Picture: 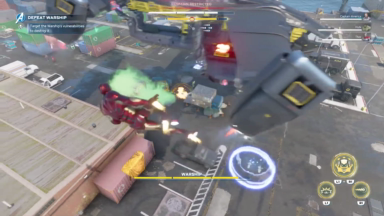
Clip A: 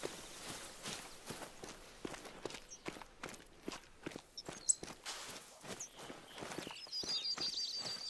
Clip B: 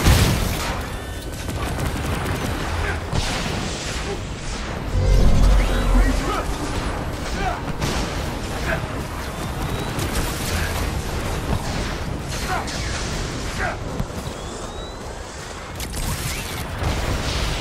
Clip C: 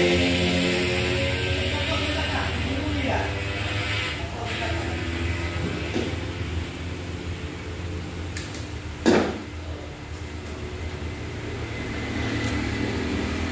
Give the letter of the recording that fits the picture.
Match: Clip B